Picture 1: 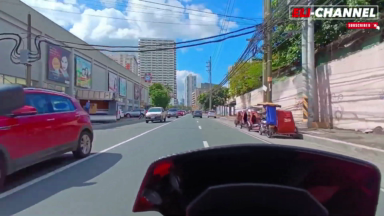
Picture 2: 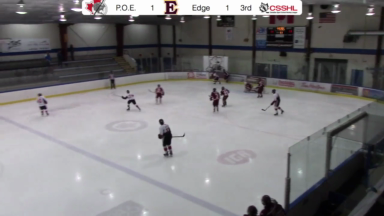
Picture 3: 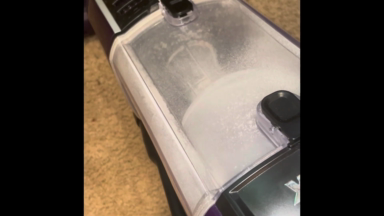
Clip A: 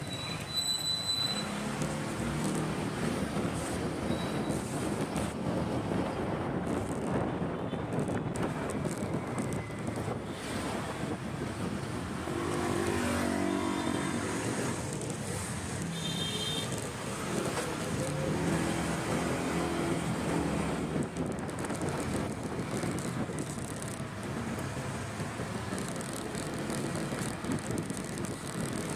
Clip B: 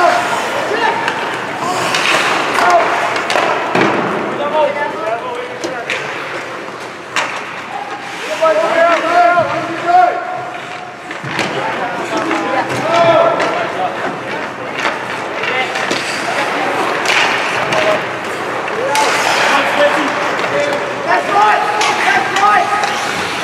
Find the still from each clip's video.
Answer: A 1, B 2